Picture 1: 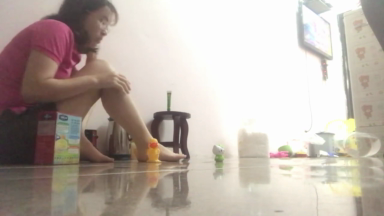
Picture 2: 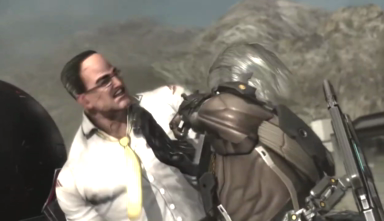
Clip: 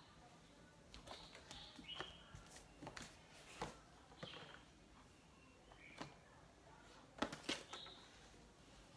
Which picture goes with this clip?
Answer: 1